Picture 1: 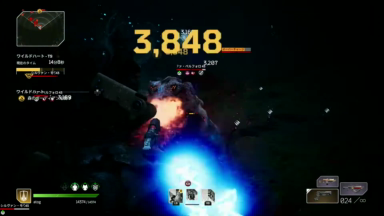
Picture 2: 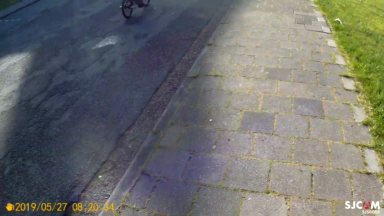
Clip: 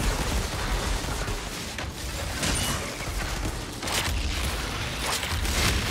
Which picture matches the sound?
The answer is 1